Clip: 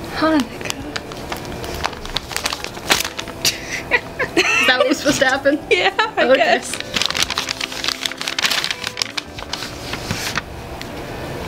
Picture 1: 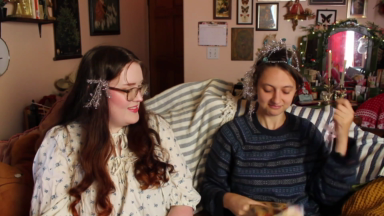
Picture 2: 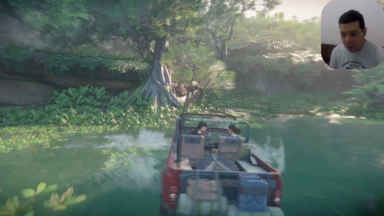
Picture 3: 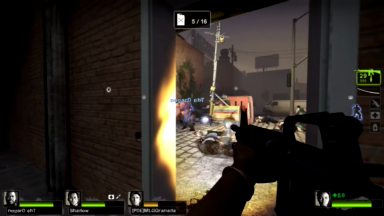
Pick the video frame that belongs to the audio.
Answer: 1